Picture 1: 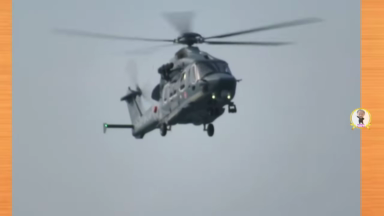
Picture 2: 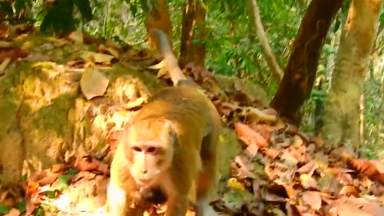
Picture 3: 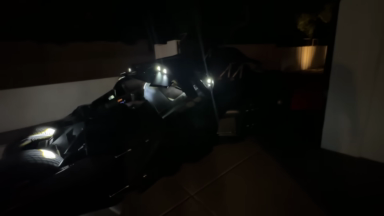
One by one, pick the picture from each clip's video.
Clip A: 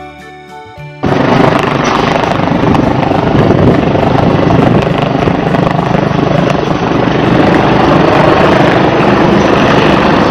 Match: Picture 1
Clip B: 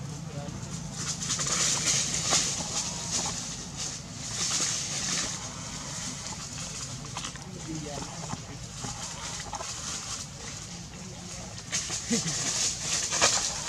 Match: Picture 2